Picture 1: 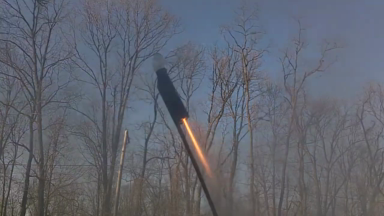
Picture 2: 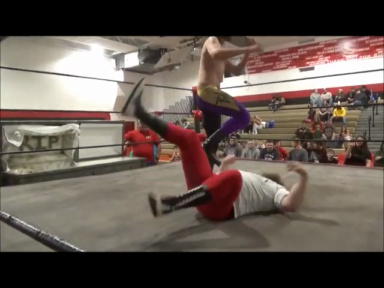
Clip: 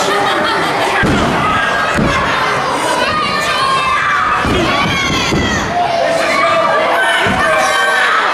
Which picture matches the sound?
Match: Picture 2